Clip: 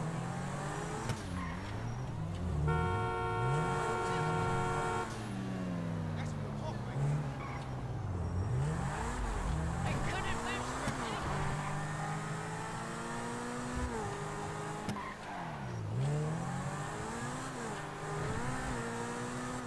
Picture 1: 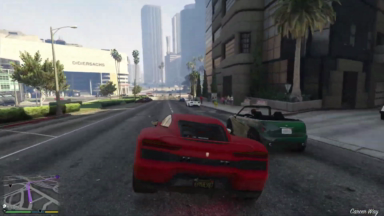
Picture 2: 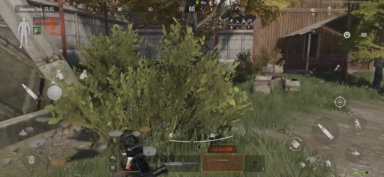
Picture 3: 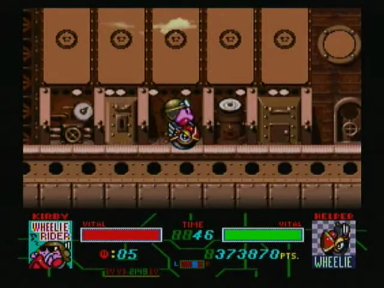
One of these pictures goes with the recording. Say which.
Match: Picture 1